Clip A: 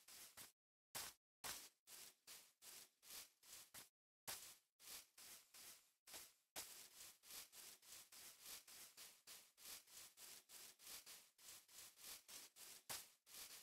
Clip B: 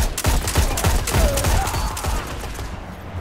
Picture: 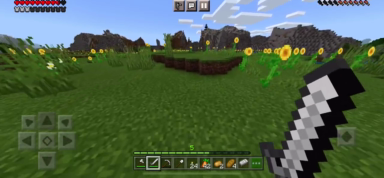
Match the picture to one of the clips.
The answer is A